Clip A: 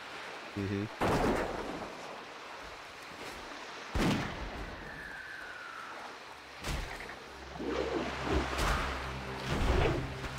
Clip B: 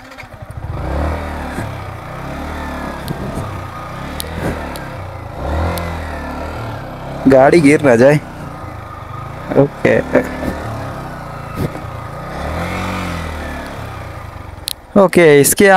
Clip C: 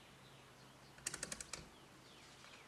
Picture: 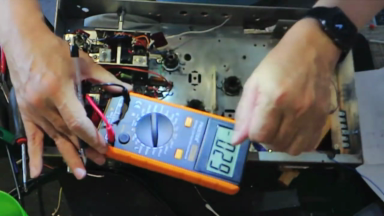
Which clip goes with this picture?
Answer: C